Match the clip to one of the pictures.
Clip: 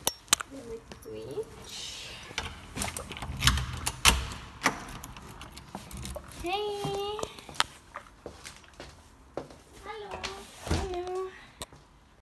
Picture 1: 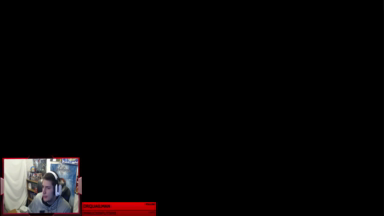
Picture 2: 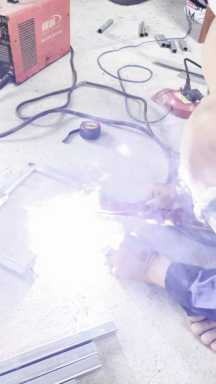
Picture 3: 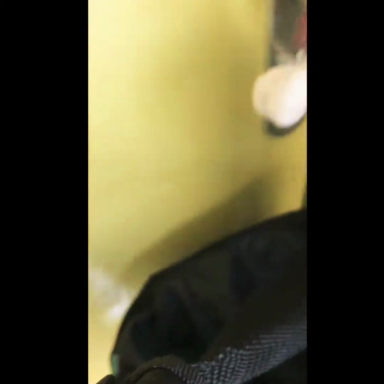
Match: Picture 3